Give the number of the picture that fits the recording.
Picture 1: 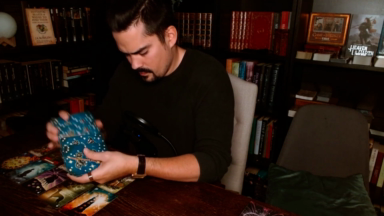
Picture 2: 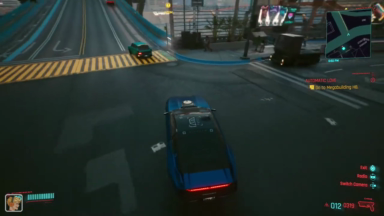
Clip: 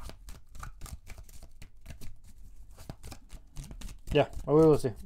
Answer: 1